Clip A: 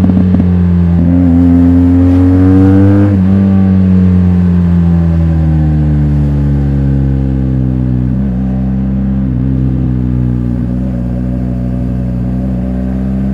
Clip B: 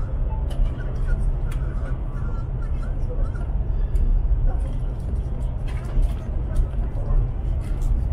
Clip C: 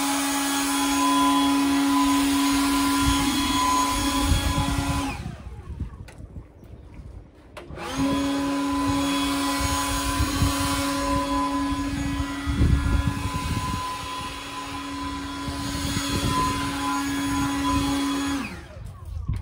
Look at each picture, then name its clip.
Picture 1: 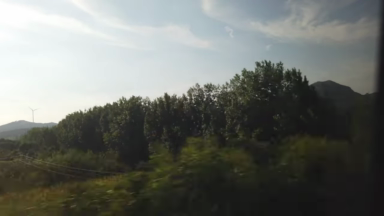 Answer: B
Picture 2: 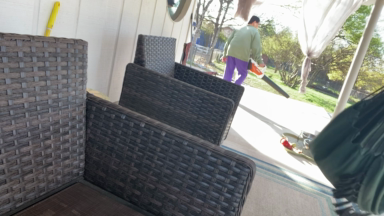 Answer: C